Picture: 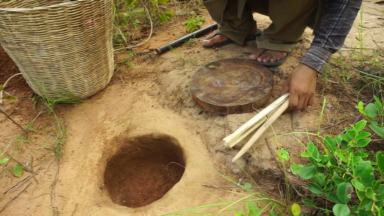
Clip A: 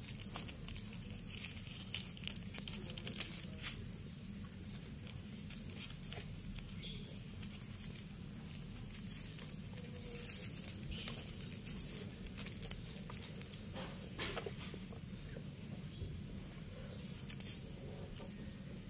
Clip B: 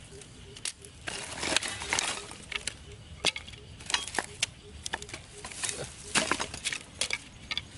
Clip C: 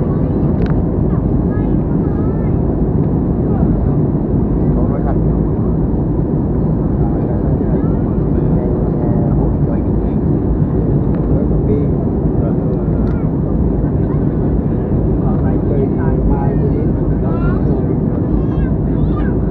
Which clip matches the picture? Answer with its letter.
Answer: B